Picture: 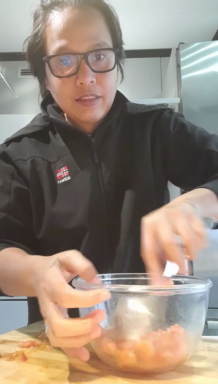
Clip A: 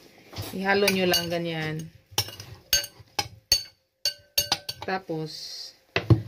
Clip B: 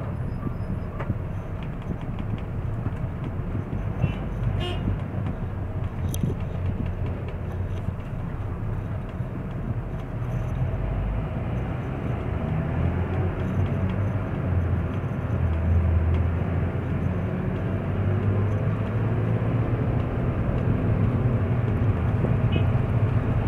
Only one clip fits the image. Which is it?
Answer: A